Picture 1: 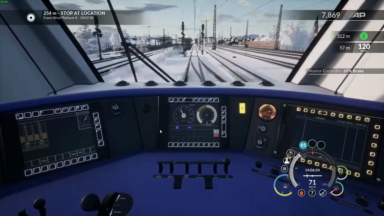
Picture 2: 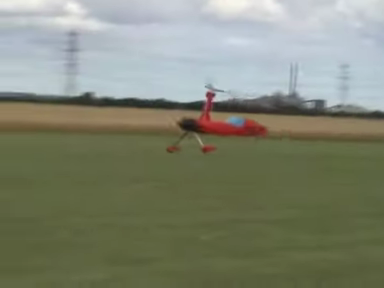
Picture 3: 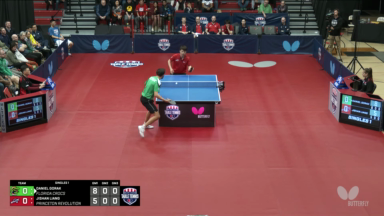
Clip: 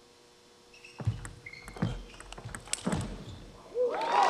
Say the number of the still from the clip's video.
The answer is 3